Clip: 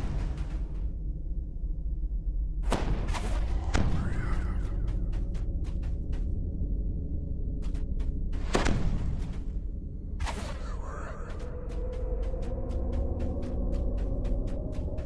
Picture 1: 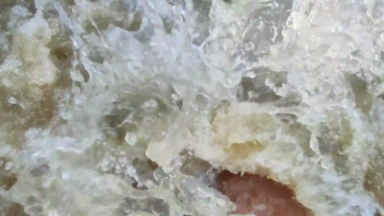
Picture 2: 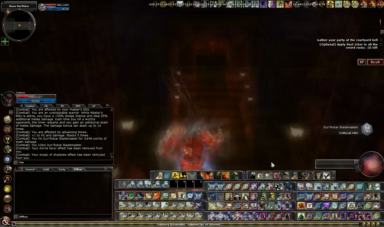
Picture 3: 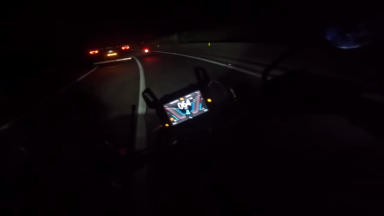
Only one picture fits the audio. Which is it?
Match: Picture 2